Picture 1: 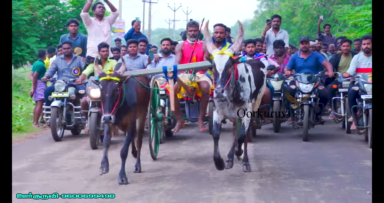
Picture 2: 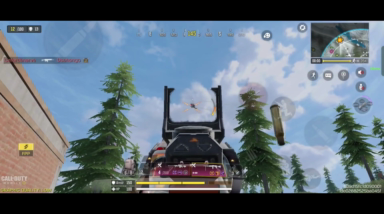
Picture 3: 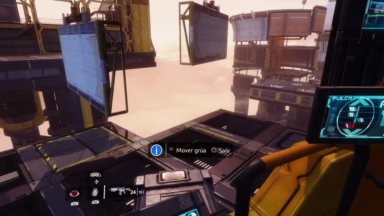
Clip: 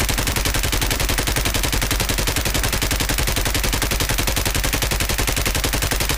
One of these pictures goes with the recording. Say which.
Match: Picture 2